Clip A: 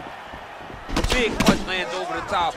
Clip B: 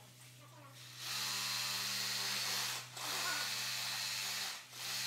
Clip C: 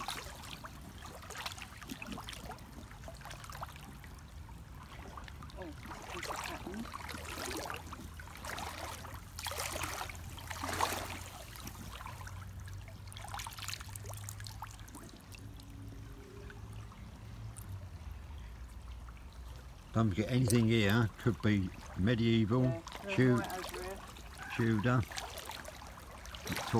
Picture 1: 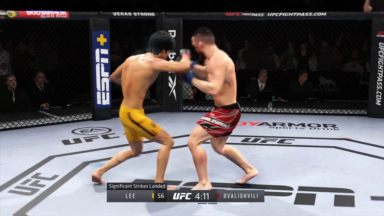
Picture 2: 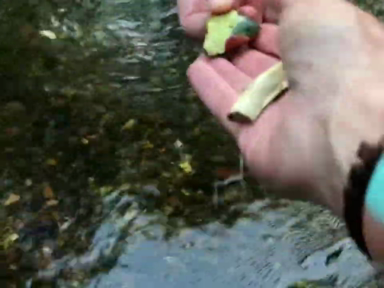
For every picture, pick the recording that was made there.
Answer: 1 A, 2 C